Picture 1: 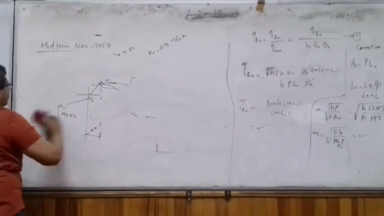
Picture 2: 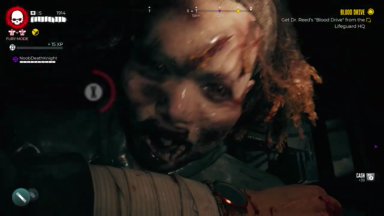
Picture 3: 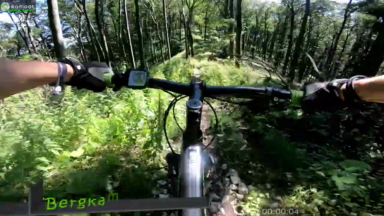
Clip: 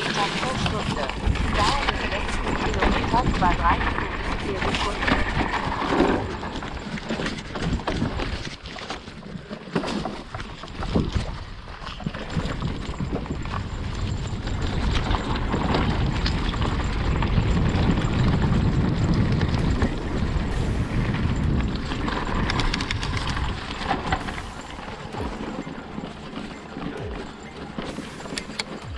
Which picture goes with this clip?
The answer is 3